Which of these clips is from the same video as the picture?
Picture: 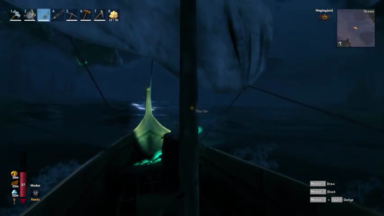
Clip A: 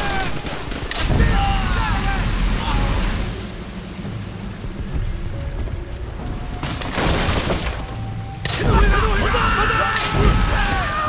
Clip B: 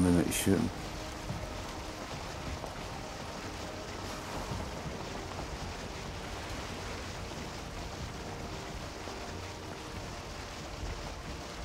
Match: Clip B